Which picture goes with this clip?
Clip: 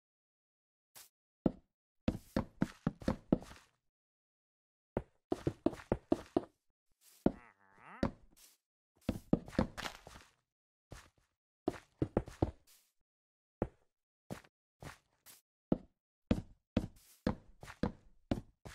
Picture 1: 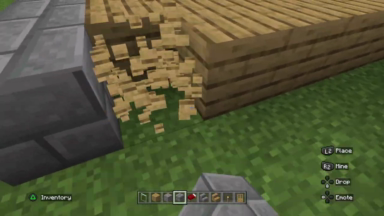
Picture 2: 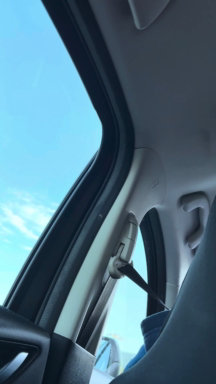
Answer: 1